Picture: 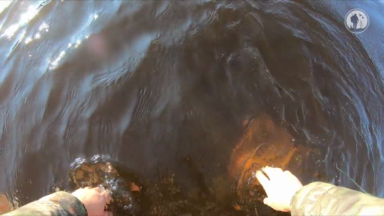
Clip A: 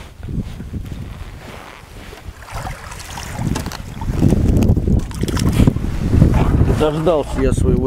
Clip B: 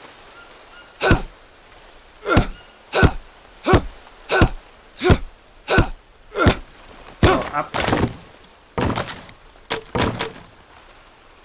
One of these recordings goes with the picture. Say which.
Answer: A